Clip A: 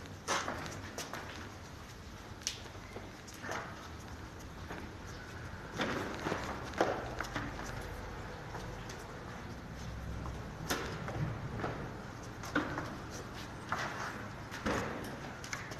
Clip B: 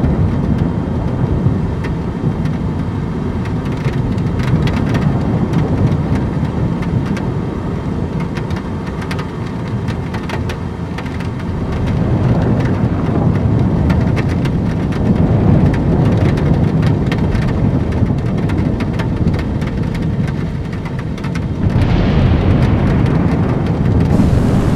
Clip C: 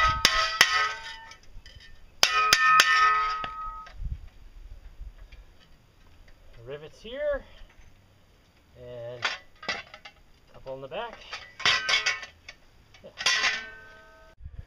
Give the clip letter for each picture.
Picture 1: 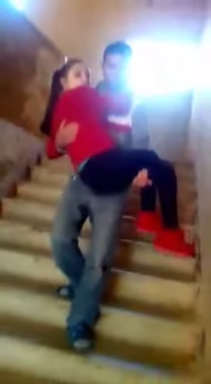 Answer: A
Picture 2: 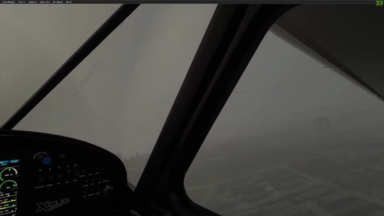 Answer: B